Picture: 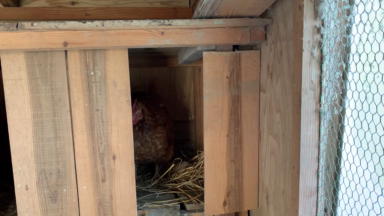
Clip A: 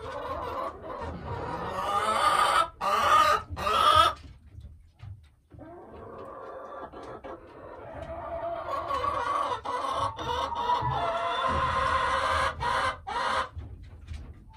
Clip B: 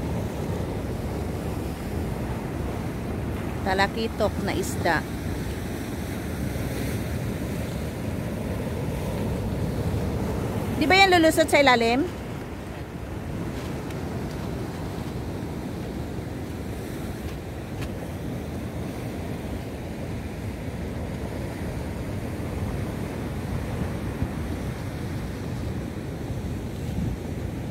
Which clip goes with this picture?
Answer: A